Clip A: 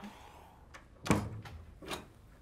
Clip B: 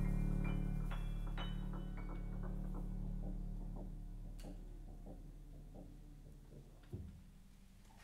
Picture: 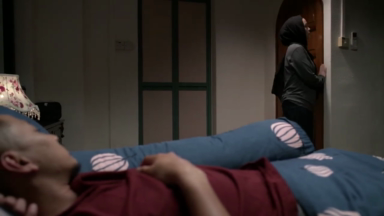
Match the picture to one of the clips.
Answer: A